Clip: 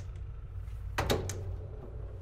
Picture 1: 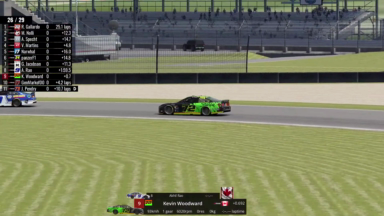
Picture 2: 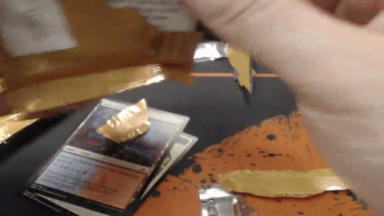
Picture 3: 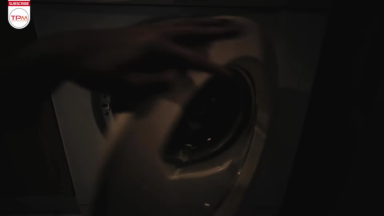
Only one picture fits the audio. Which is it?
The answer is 3